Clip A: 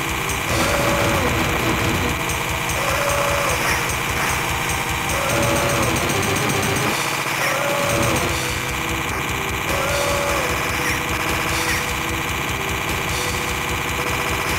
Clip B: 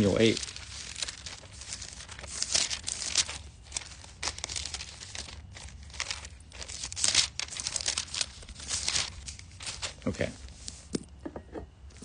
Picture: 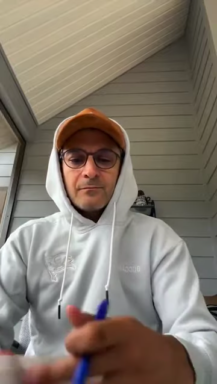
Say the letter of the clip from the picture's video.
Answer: B